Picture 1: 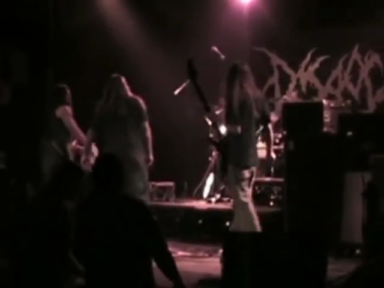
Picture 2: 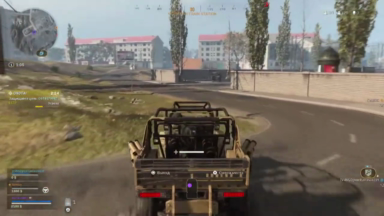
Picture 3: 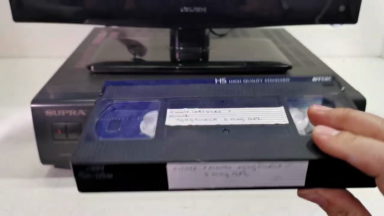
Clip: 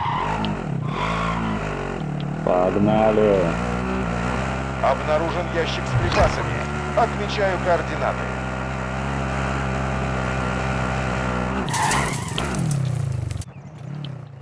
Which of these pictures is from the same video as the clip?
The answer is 2